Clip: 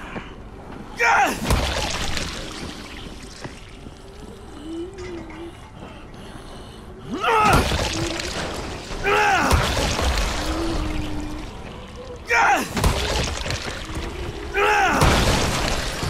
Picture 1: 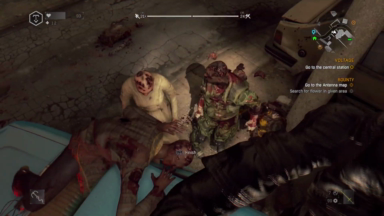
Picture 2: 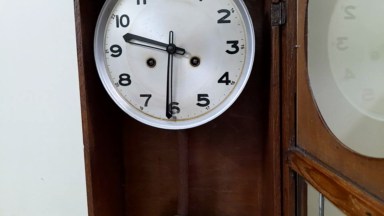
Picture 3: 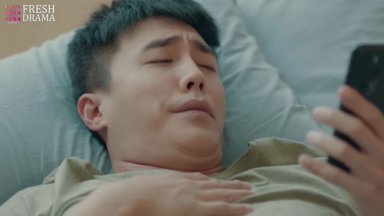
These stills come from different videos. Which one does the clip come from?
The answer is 1